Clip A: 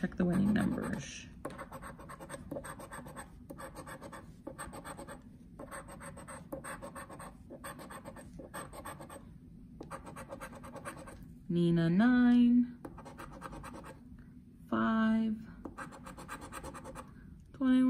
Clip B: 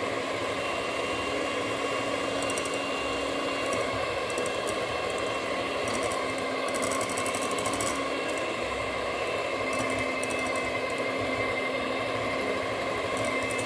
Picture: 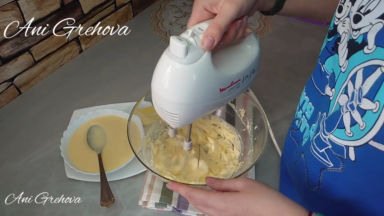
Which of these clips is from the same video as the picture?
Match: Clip B